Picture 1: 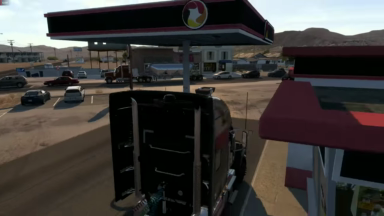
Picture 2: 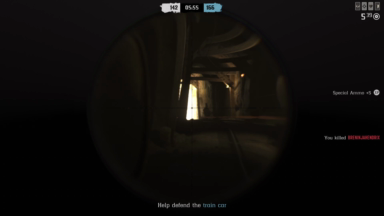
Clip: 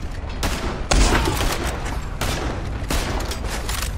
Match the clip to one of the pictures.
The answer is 2